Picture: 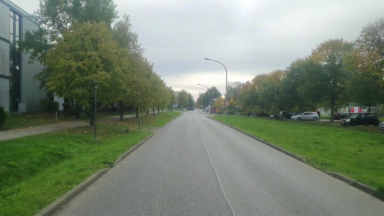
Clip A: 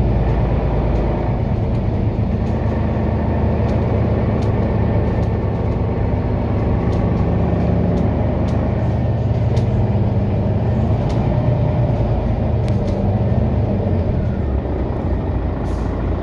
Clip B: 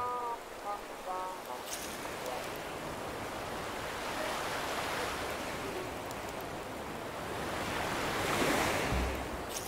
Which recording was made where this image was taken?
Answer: A